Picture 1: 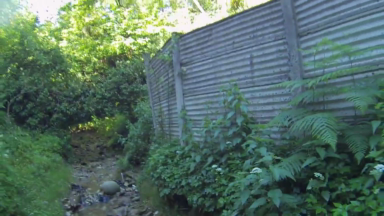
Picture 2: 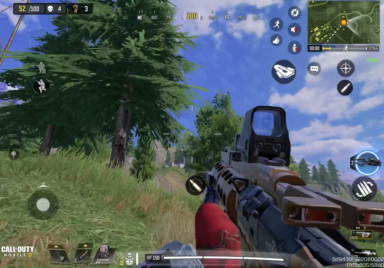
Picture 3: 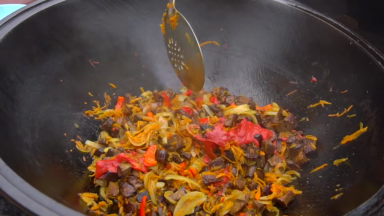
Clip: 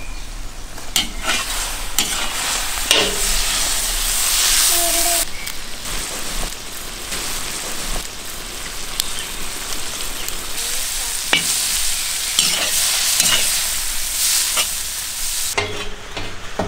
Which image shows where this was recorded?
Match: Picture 3